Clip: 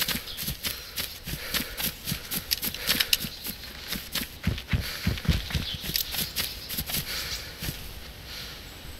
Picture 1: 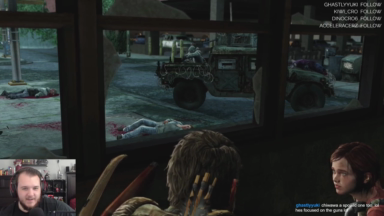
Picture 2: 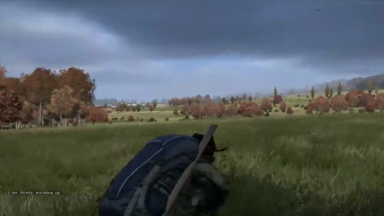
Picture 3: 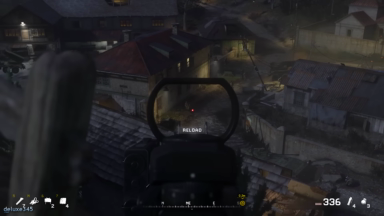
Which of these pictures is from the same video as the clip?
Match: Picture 2